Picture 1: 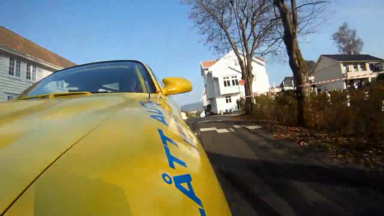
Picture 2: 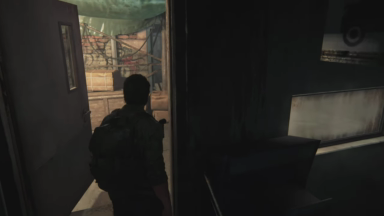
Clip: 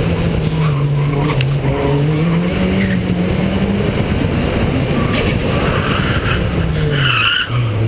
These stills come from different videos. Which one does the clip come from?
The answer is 1